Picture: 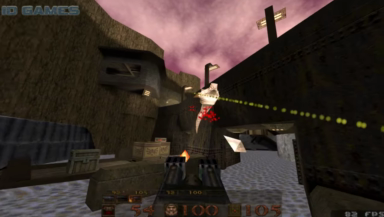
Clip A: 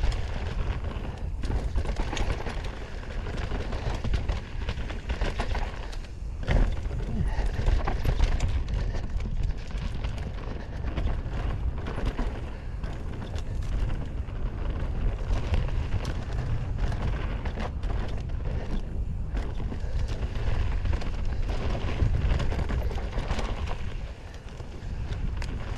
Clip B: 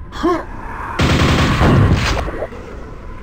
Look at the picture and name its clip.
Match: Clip B